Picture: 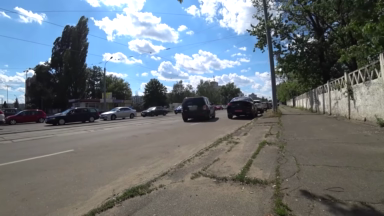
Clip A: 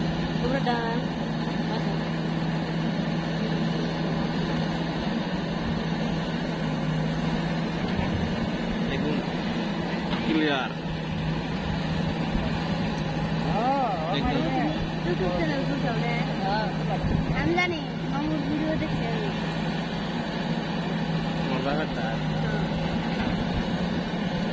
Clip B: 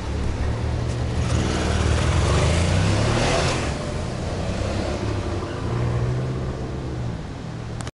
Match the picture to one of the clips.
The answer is B